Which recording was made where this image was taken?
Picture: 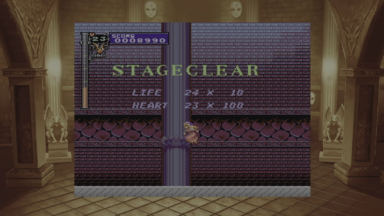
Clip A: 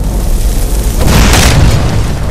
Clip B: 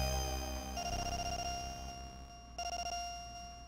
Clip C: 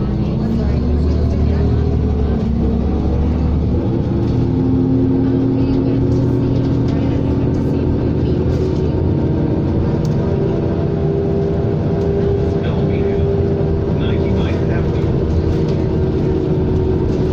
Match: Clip B